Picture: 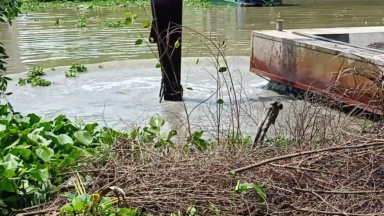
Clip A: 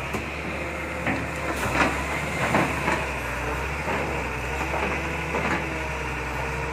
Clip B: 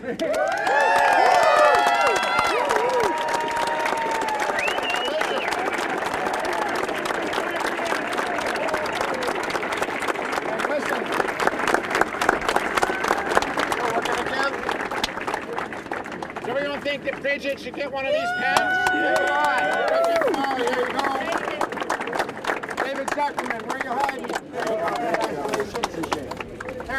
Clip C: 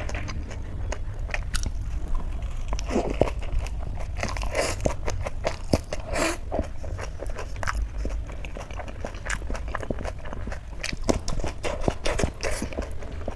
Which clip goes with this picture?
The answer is A